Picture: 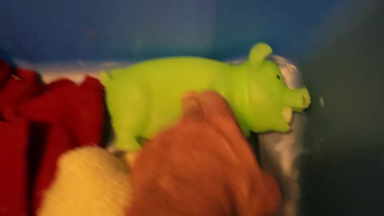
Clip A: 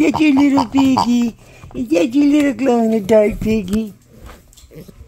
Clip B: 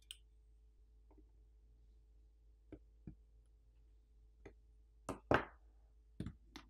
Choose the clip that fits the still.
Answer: A